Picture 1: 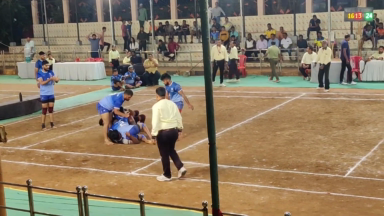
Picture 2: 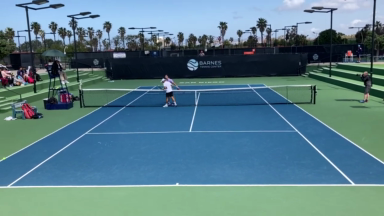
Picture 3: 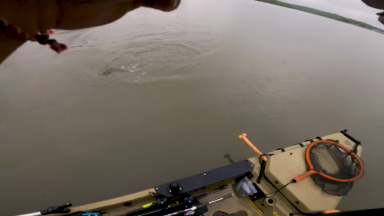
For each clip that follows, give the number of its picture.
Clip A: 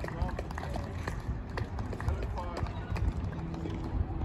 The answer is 2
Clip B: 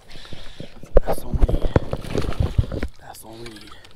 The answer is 3